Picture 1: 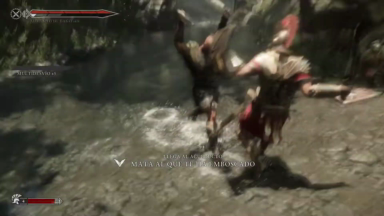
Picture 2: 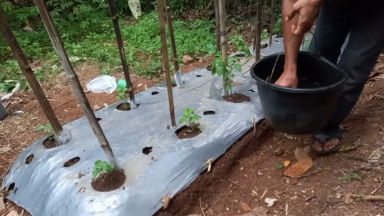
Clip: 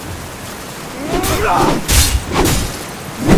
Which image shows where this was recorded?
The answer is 1